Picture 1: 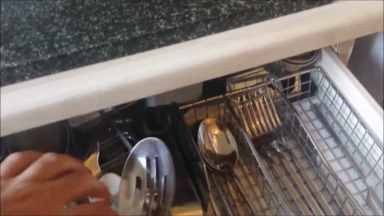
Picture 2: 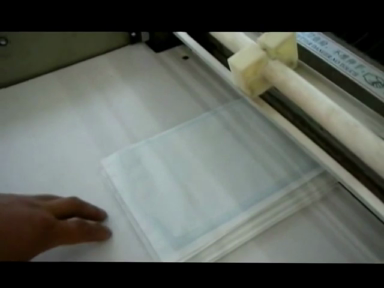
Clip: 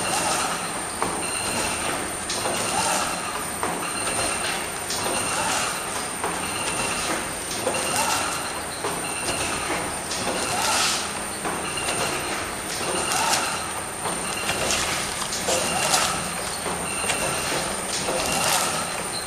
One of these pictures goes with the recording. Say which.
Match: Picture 2